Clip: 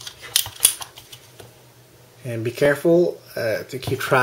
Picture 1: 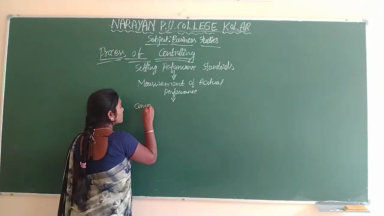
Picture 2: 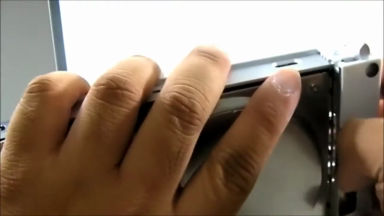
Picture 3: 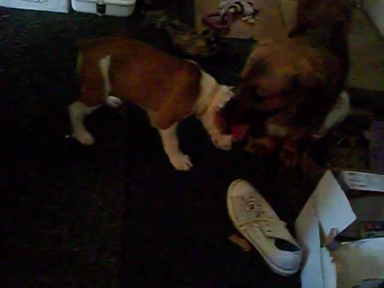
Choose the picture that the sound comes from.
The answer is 2